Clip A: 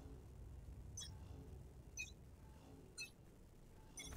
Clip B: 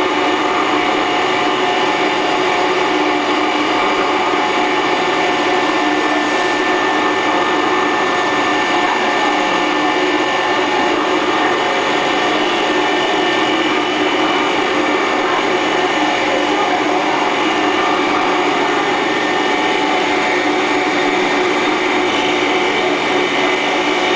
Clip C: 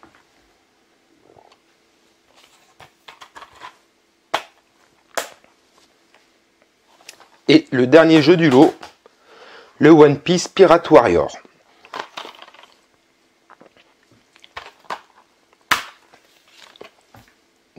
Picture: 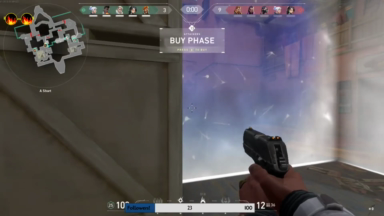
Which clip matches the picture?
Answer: A